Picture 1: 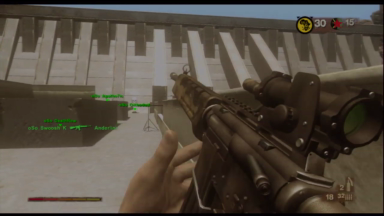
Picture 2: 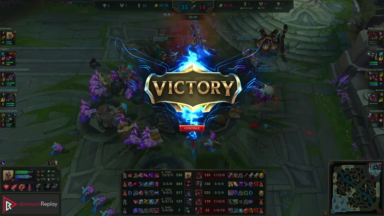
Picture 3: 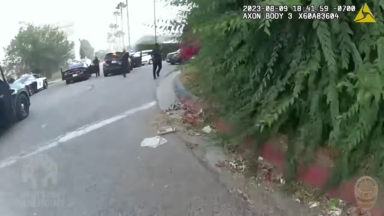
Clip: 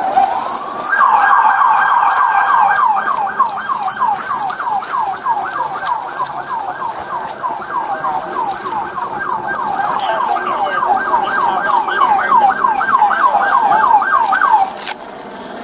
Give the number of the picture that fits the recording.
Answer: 3